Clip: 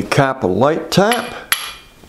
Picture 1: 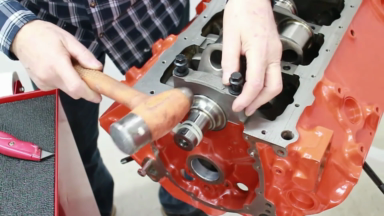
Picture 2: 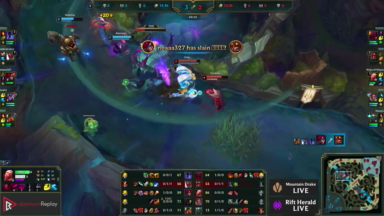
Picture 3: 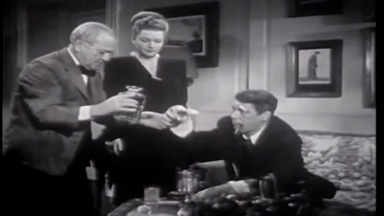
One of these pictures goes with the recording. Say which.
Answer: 1